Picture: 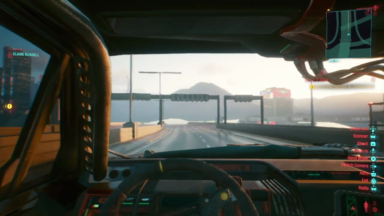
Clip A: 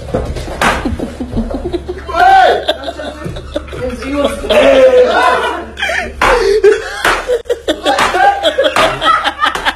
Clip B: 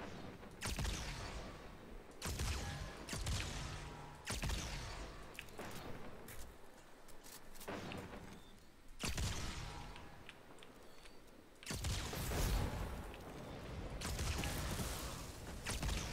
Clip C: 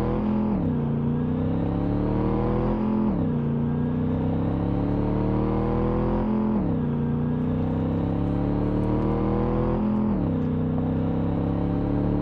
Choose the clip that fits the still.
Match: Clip C